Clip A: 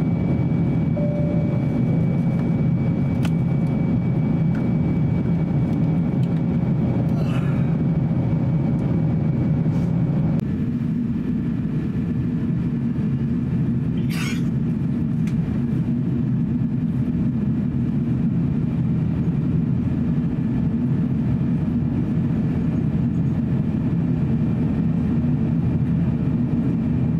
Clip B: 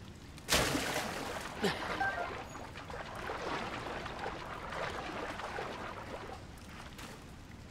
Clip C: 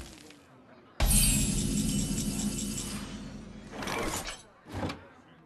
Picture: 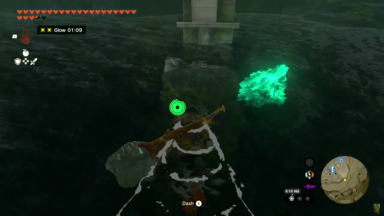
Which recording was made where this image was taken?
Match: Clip B